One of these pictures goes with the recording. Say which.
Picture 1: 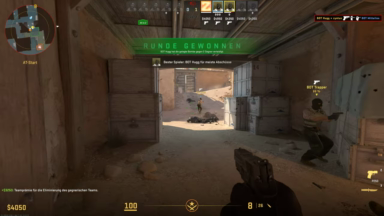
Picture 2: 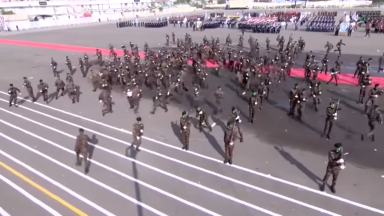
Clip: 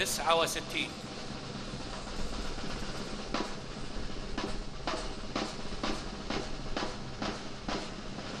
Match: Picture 2